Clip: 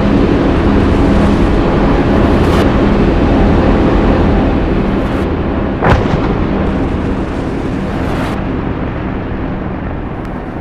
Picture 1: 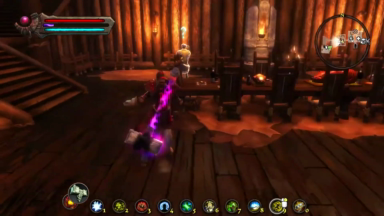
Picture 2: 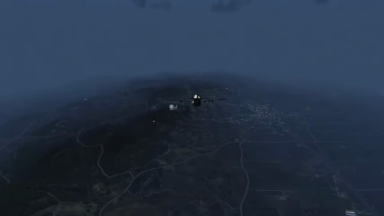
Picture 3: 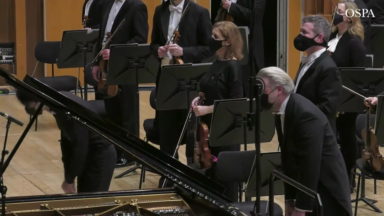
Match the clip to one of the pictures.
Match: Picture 2